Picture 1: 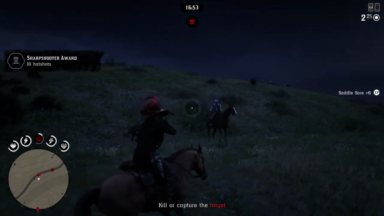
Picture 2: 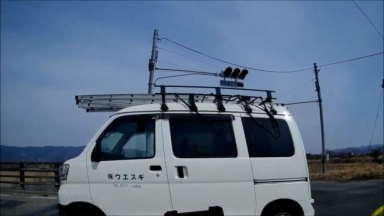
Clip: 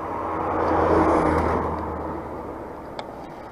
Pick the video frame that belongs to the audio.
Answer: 2